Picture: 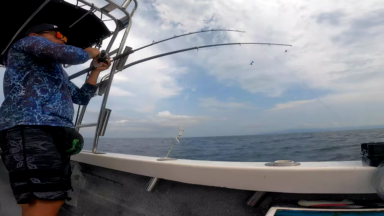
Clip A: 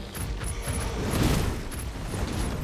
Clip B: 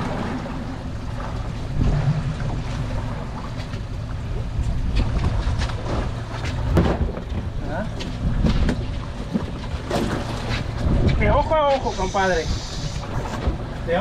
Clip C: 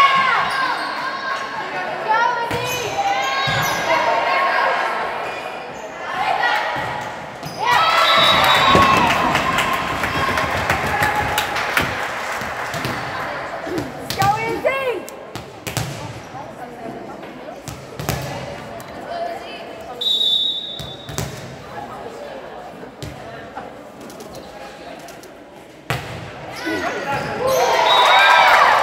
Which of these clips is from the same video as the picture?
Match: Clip B